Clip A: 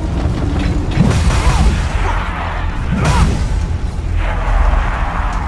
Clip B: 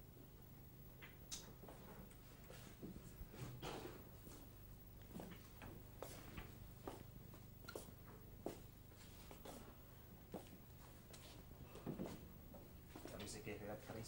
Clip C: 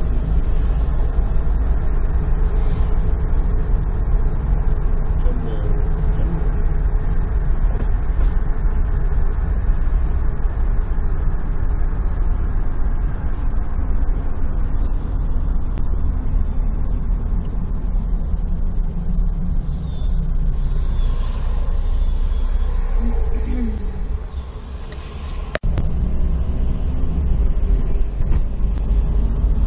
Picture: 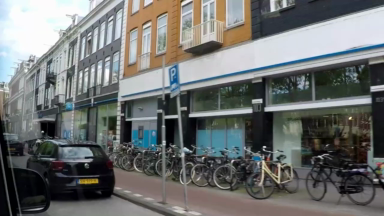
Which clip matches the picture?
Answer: C